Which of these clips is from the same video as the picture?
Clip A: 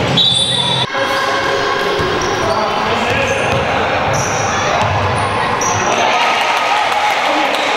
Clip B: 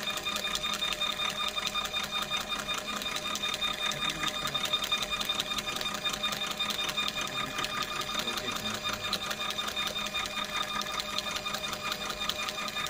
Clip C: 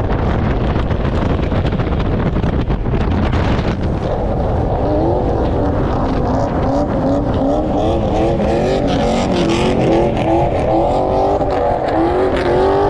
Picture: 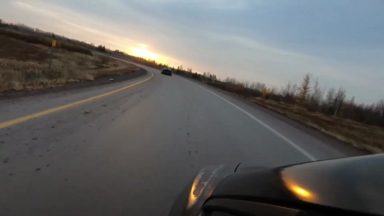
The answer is C